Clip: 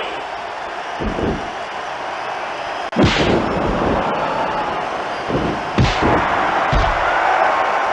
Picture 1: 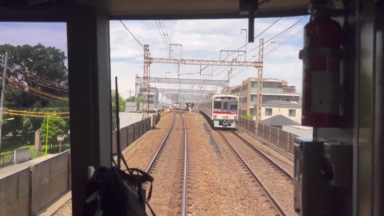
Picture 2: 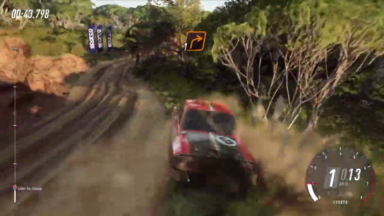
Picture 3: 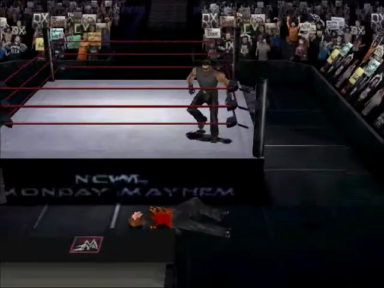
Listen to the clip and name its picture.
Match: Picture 3